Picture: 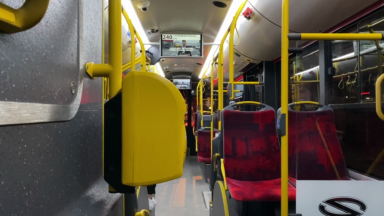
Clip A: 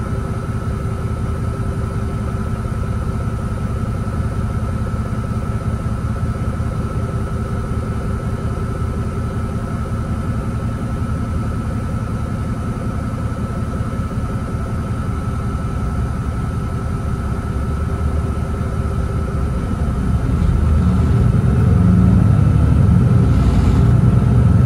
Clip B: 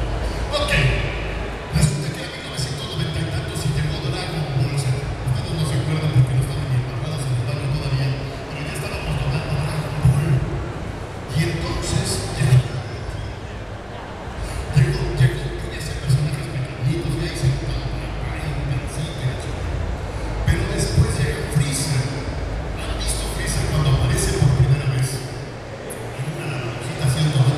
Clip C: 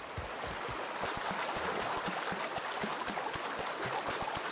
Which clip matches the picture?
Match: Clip A